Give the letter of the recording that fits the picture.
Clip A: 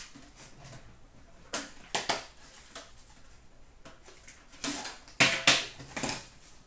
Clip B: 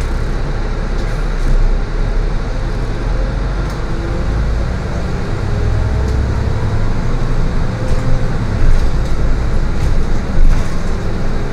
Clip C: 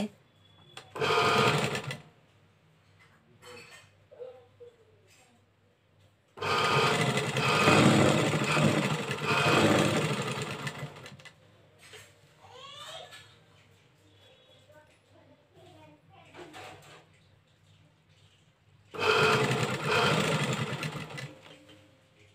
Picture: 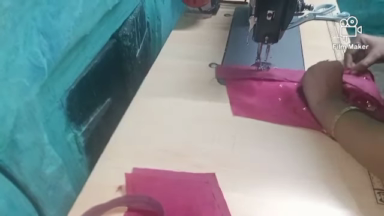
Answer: C